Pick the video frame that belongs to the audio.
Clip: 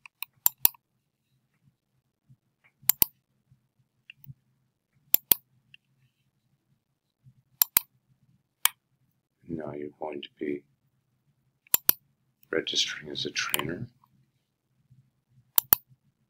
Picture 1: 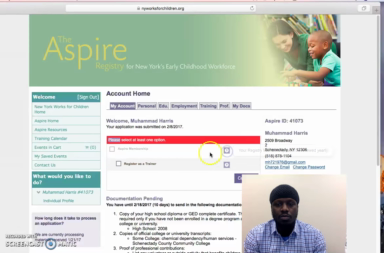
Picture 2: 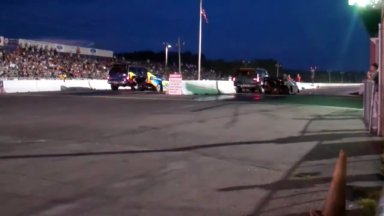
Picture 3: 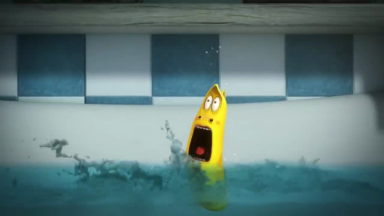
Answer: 1